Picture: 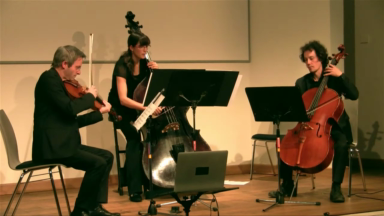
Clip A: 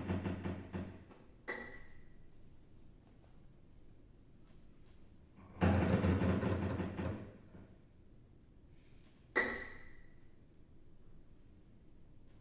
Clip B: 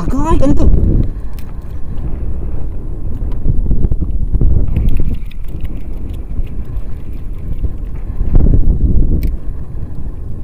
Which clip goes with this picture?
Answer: A